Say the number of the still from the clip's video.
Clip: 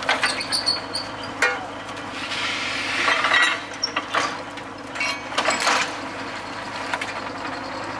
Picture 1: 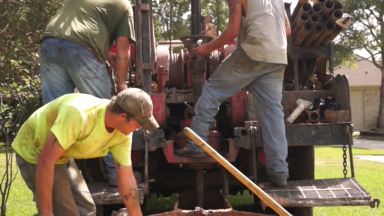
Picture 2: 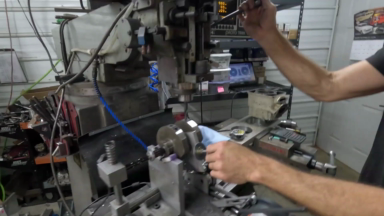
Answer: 1